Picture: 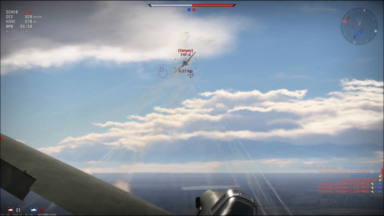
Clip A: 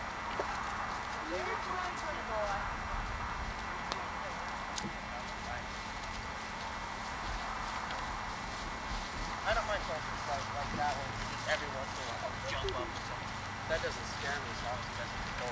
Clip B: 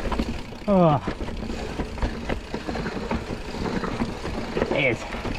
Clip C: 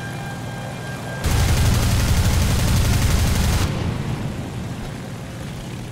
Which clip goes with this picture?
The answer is C